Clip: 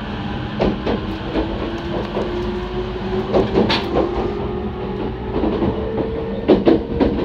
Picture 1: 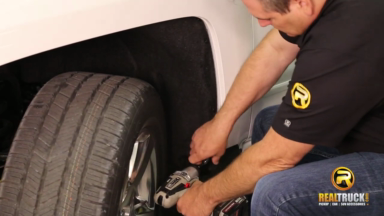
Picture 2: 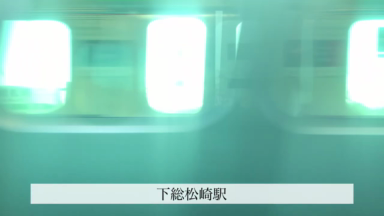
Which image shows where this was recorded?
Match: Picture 2